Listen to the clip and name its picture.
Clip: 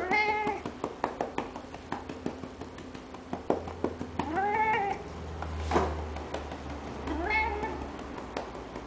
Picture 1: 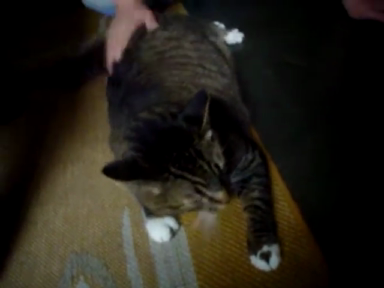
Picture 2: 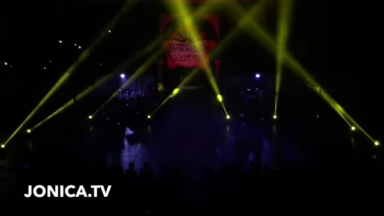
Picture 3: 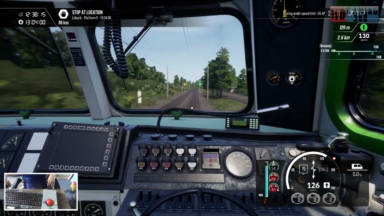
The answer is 1